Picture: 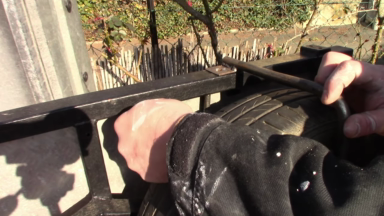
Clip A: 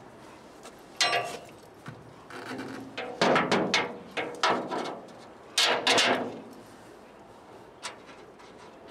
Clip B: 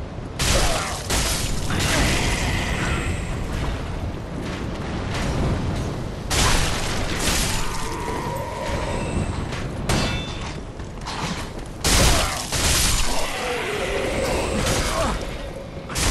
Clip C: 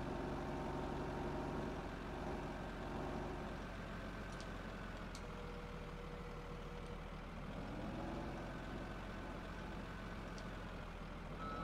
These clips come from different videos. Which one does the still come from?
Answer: A